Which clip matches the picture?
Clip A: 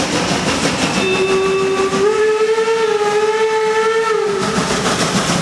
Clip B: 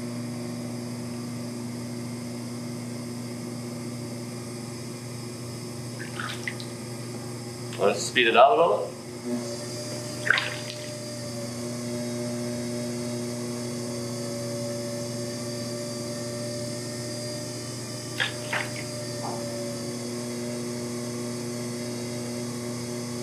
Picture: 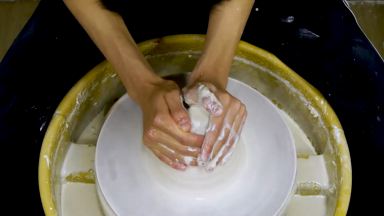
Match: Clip B